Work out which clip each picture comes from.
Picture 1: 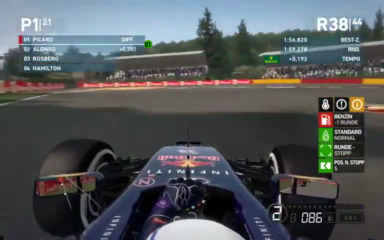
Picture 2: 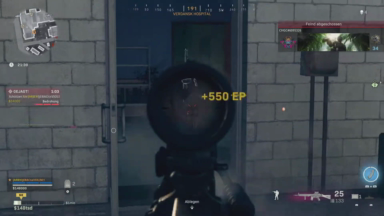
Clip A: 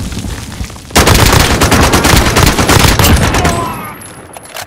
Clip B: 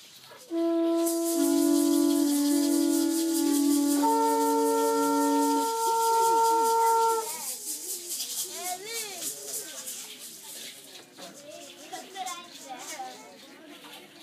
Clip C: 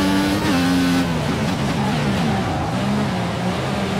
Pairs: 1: C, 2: A